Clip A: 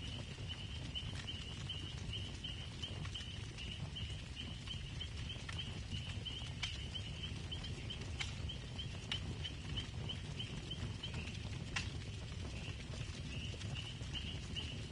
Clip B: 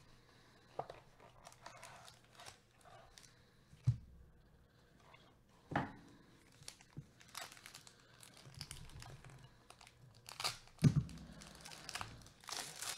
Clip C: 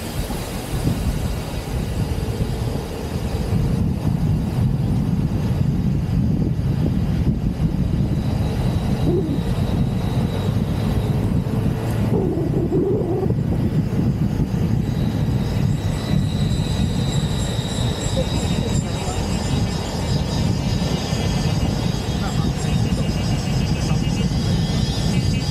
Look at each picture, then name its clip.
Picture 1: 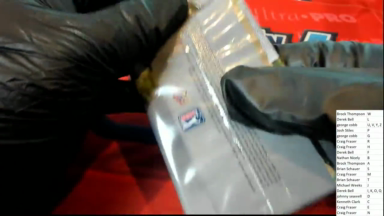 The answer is B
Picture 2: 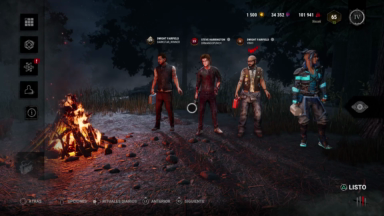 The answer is A